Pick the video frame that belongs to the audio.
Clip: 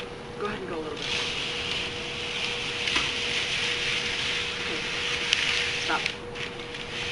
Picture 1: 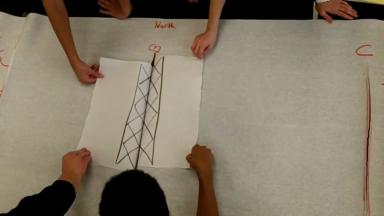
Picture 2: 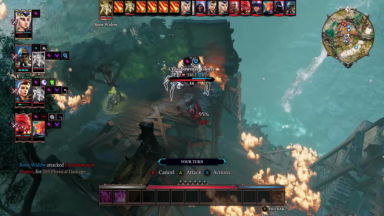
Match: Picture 1